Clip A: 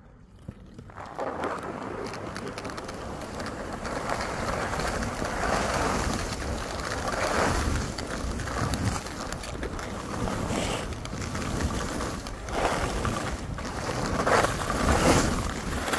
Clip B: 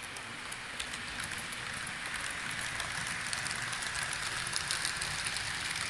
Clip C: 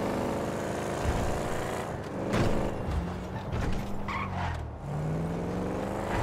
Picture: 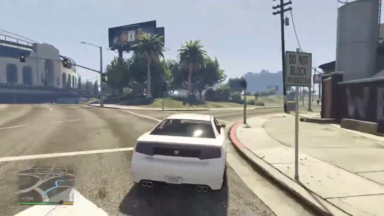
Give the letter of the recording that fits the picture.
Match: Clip C